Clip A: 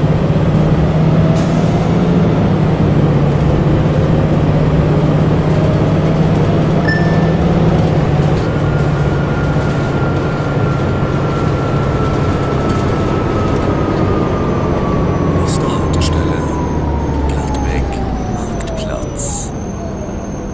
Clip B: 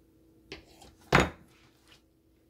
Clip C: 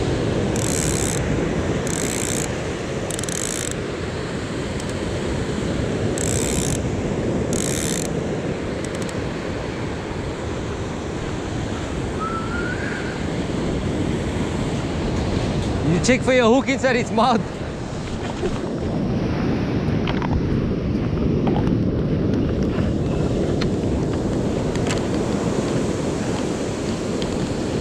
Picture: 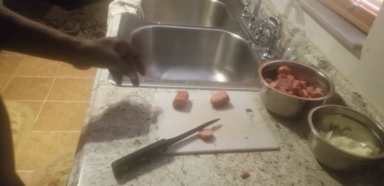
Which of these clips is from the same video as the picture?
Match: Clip B